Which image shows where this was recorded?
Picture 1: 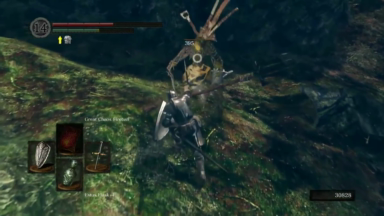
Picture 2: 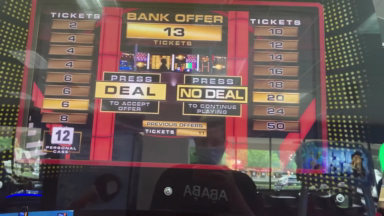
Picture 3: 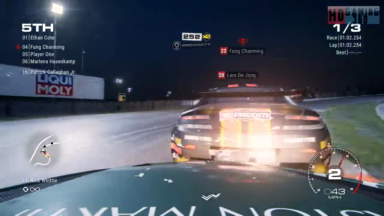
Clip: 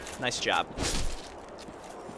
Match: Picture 1